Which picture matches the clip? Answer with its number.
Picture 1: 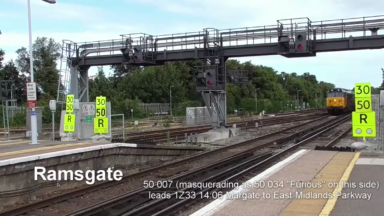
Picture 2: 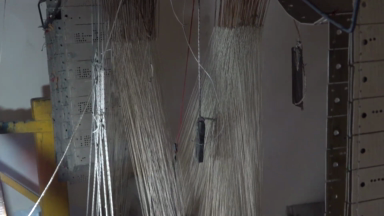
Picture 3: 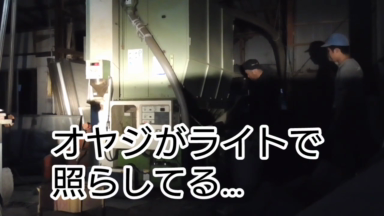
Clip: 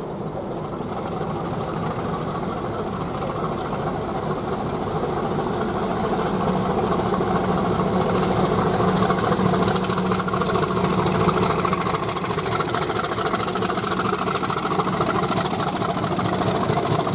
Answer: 1